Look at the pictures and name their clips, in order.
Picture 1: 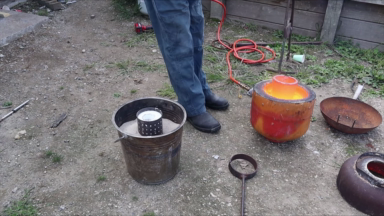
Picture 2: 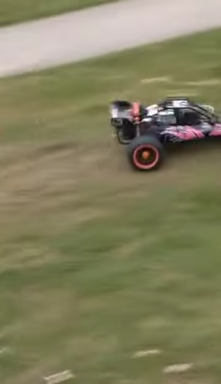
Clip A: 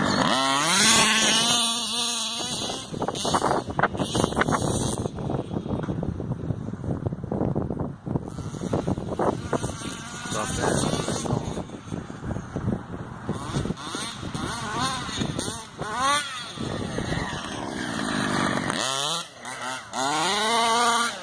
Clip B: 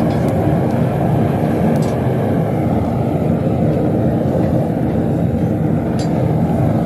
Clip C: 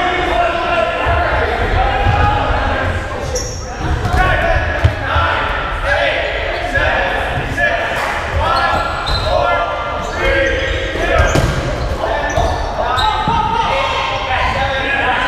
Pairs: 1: B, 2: A